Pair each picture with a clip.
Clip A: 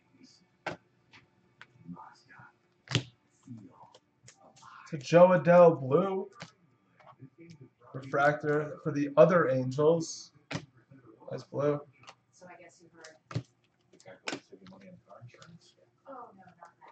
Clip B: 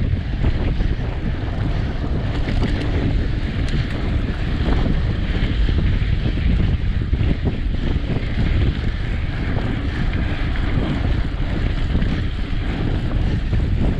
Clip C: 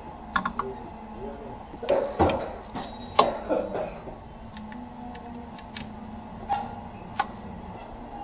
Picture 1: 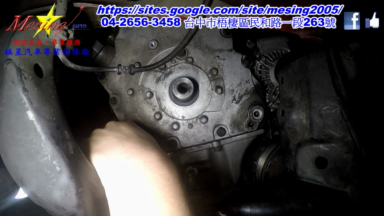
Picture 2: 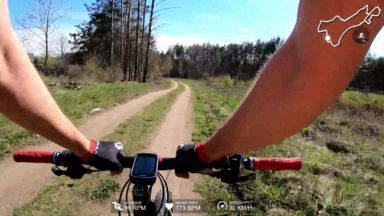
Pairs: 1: C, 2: B